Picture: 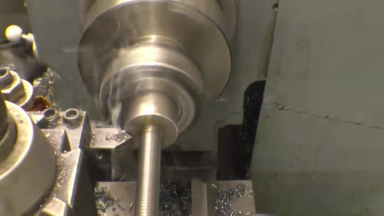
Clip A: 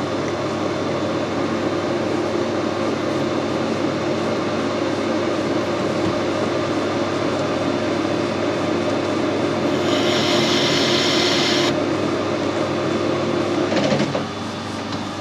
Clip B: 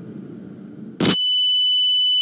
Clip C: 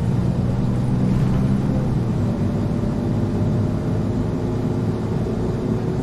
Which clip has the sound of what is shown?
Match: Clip A